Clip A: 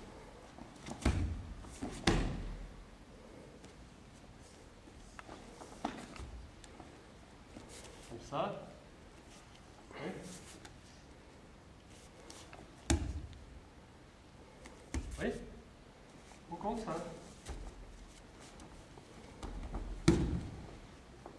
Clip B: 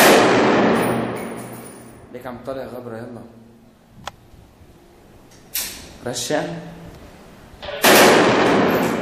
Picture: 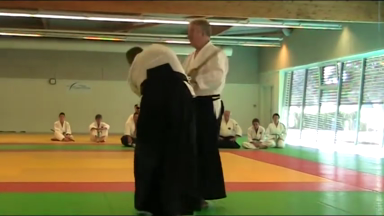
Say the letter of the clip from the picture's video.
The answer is A